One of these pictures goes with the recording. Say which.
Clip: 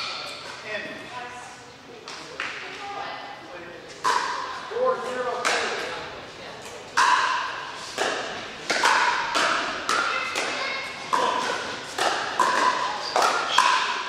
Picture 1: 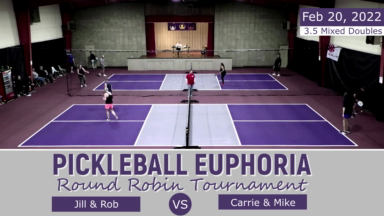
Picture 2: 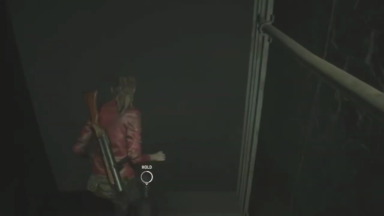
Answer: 1